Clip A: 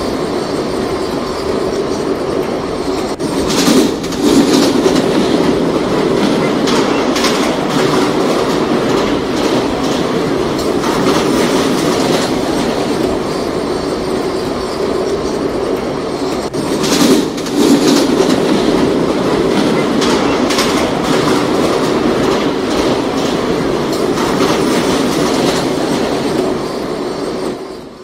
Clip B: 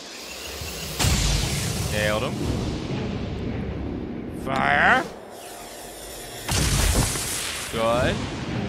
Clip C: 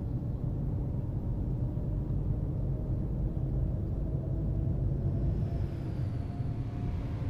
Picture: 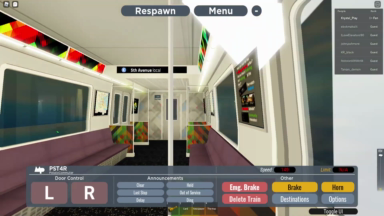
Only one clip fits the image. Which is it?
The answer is A